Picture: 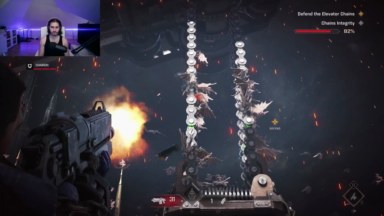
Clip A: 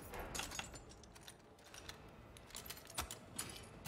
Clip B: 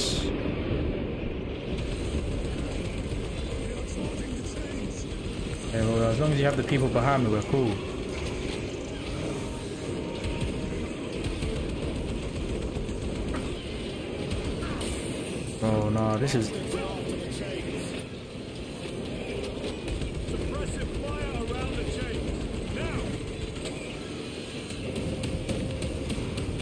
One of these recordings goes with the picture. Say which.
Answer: B